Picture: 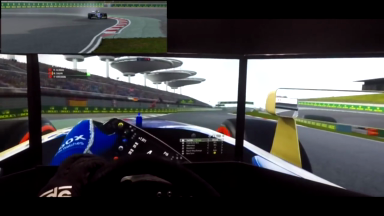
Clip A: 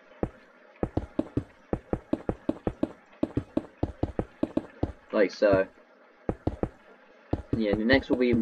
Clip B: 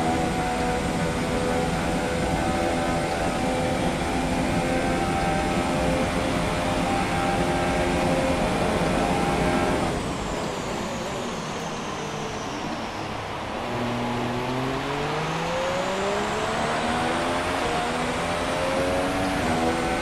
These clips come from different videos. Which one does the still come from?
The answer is B